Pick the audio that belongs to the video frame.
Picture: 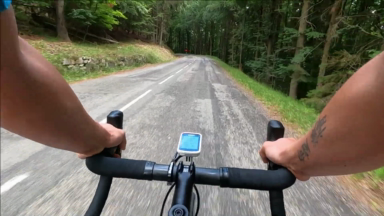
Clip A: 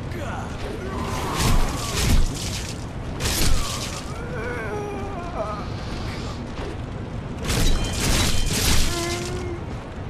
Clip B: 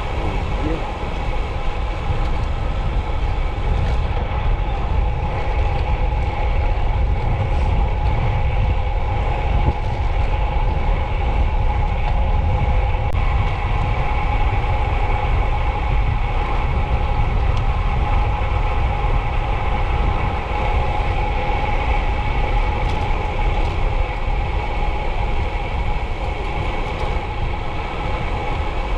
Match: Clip B